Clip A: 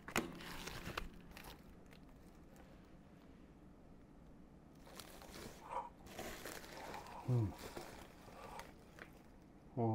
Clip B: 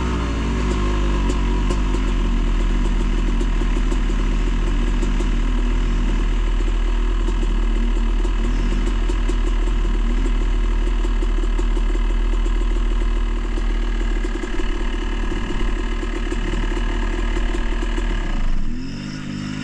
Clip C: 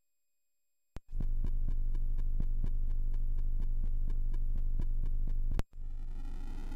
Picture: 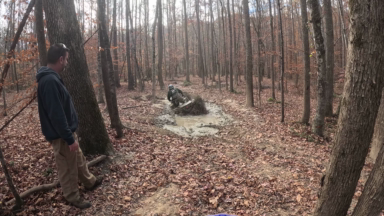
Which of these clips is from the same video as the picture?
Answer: B